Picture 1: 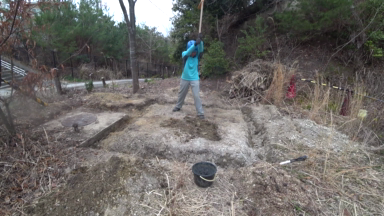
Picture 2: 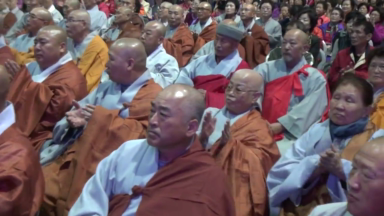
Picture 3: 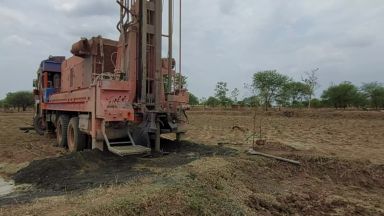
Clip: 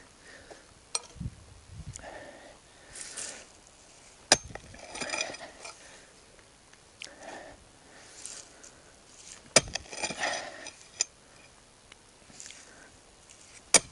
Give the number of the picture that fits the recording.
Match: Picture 1